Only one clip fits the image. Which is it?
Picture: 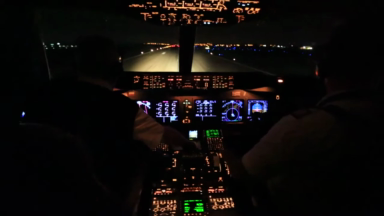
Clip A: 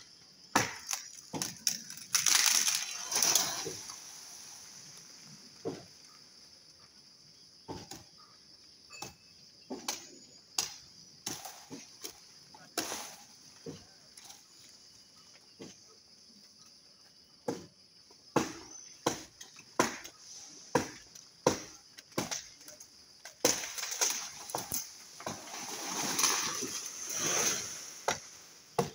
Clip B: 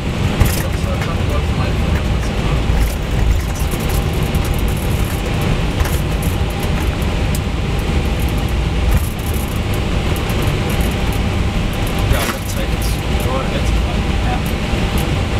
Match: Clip B